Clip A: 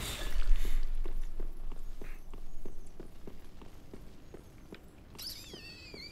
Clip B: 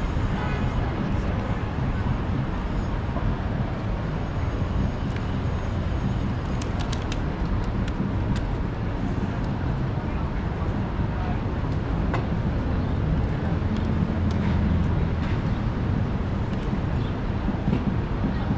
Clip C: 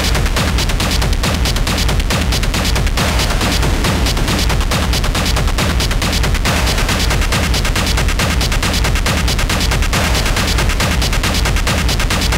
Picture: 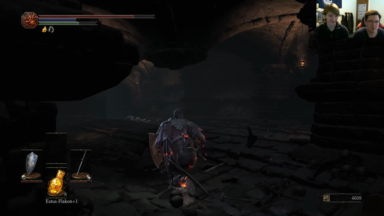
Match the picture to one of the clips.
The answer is A